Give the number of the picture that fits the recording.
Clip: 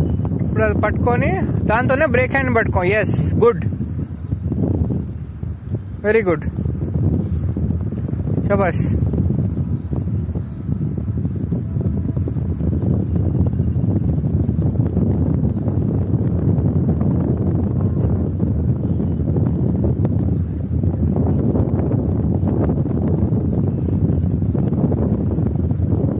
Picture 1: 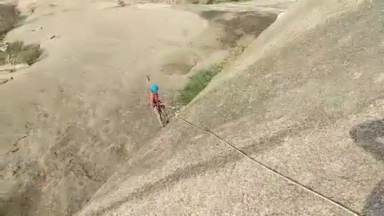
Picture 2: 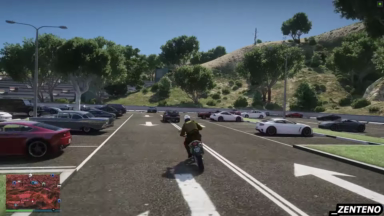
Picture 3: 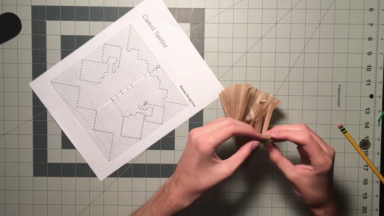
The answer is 1